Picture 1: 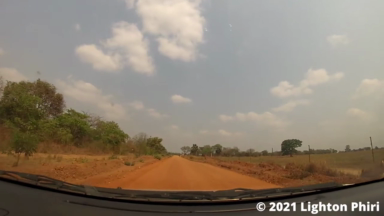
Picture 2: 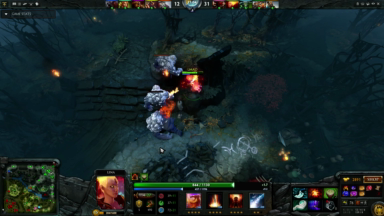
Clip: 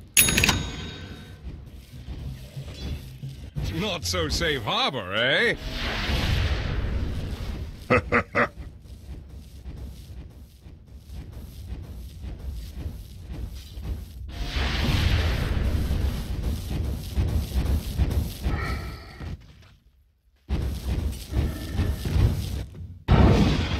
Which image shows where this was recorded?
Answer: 2